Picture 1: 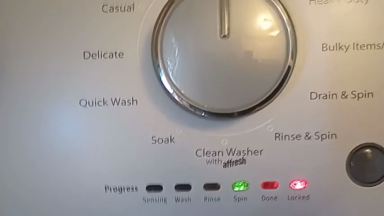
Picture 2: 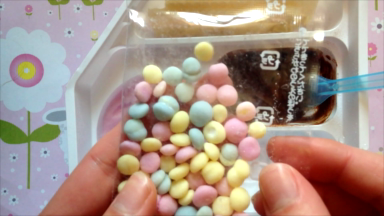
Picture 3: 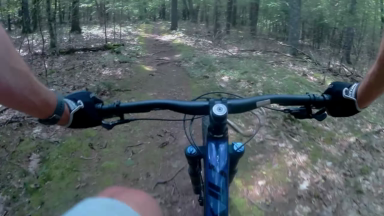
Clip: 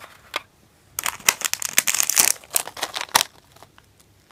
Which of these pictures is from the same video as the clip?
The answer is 2